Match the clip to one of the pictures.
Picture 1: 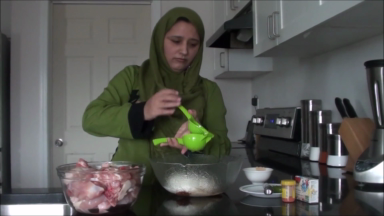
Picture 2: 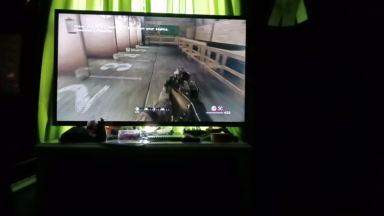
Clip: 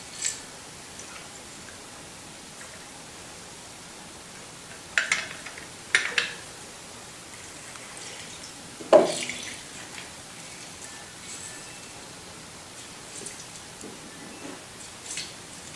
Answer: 1